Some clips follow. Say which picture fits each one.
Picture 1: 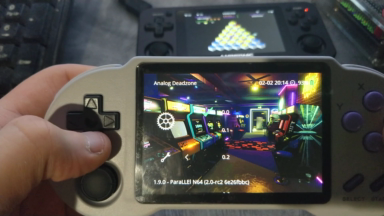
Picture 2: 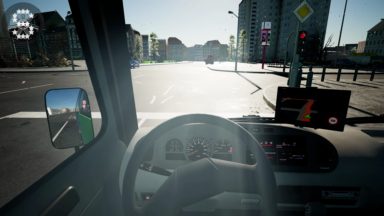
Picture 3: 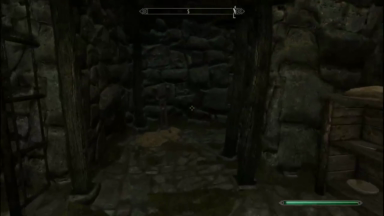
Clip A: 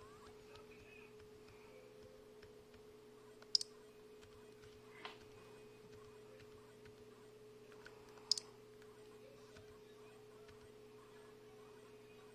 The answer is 1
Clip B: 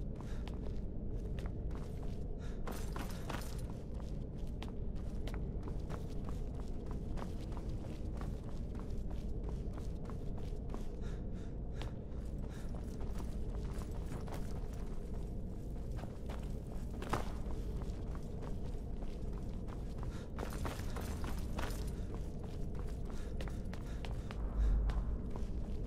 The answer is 3